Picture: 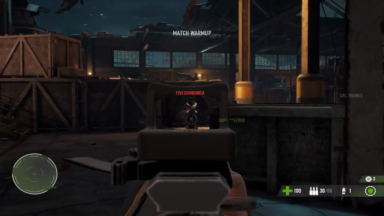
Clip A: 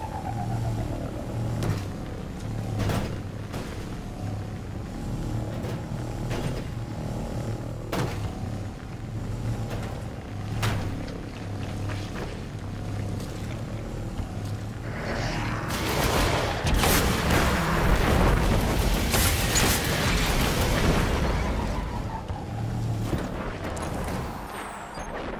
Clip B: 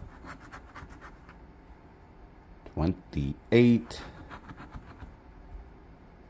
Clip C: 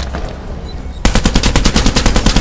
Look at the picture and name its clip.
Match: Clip C